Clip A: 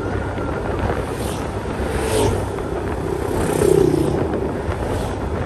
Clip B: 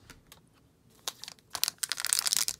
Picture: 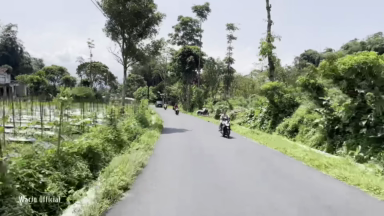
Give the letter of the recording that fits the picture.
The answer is A